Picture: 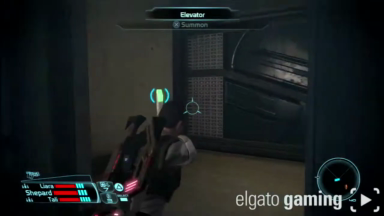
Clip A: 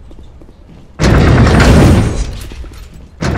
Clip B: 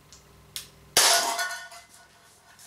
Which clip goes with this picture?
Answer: A